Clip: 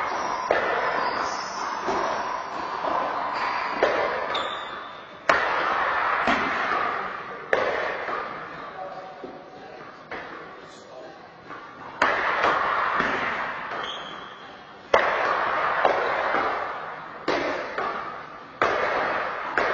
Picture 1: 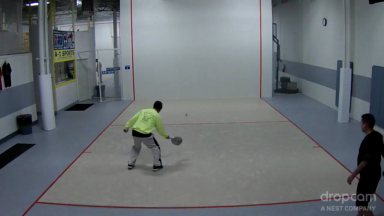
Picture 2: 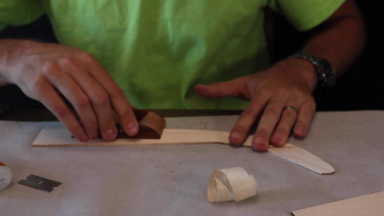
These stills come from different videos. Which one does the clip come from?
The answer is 1